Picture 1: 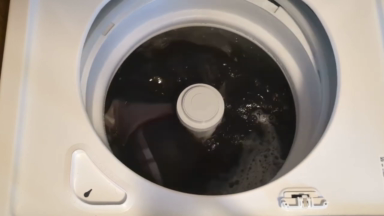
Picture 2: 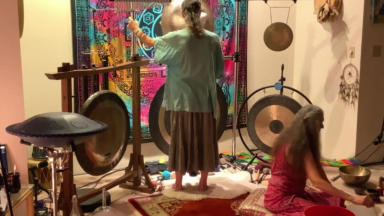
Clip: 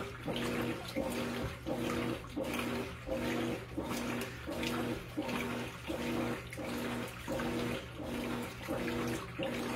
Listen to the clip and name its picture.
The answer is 1